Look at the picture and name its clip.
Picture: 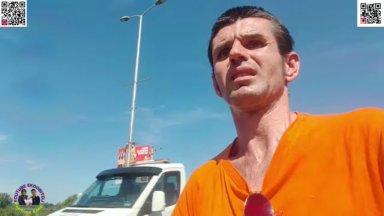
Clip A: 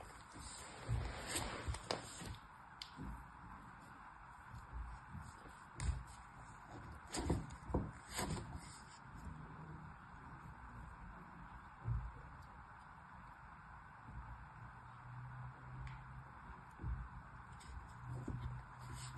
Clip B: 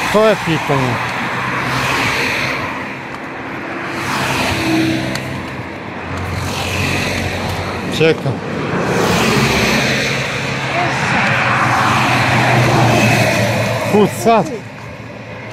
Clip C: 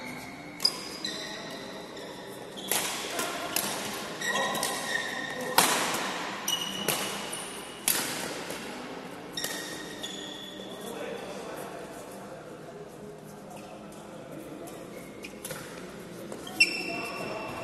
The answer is B